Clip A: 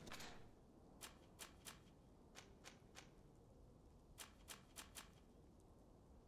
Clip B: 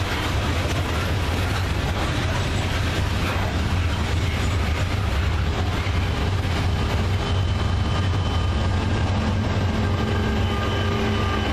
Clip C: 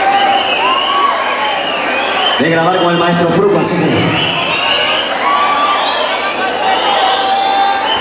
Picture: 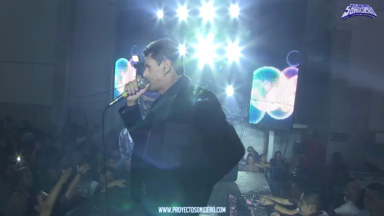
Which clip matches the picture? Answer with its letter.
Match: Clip C